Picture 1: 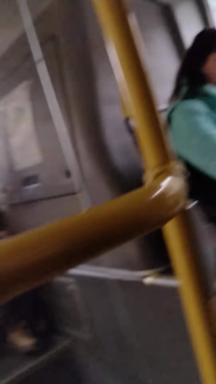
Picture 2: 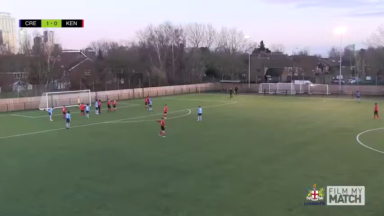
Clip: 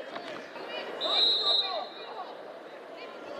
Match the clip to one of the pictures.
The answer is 2